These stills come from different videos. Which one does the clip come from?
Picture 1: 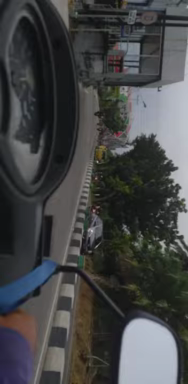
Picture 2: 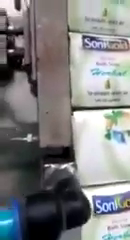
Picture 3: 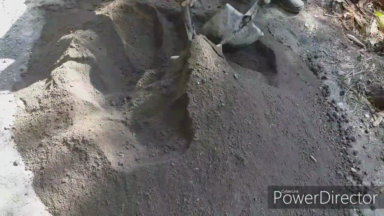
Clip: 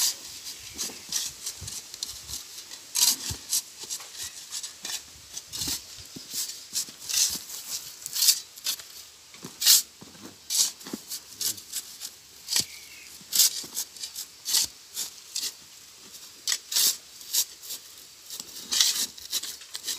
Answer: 3